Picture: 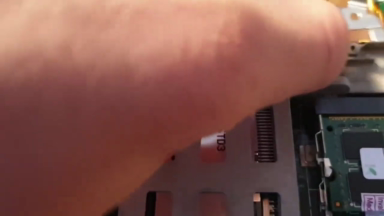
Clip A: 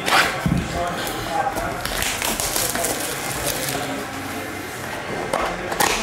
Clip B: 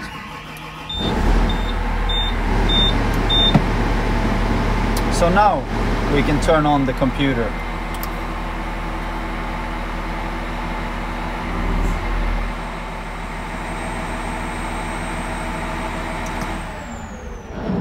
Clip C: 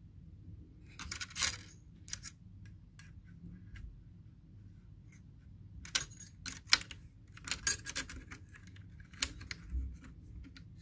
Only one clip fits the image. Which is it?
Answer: C